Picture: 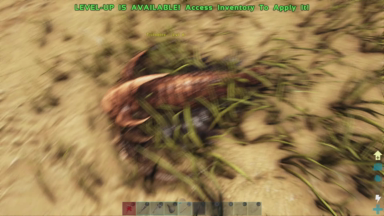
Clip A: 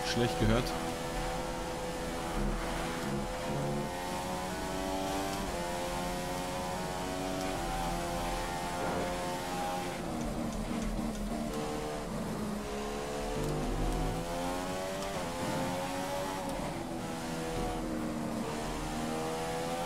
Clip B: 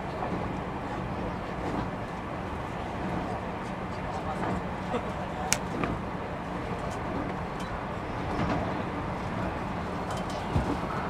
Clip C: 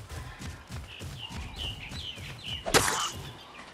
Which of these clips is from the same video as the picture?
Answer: C